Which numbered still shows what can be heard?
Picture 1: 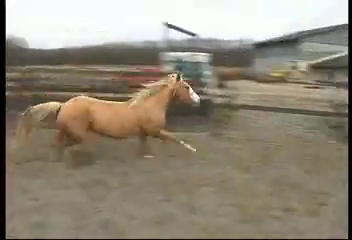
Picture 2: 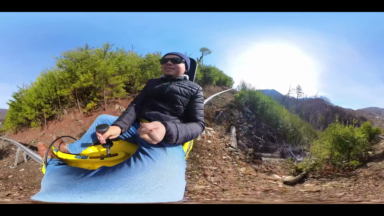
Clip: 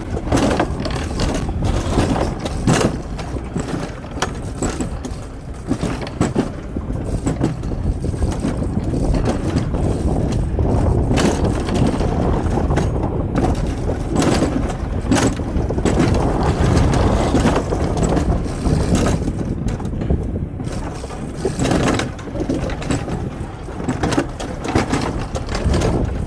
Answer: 2